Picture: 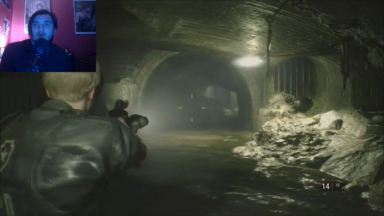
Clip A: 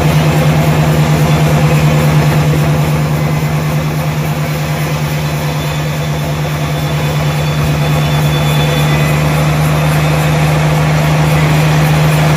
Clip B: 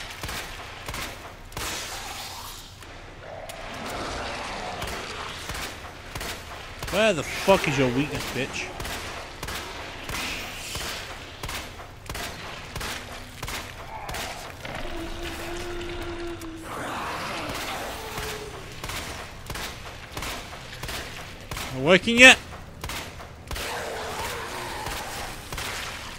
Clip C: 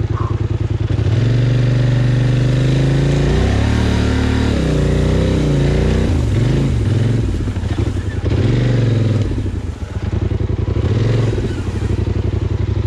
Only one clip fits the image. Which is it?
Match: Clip B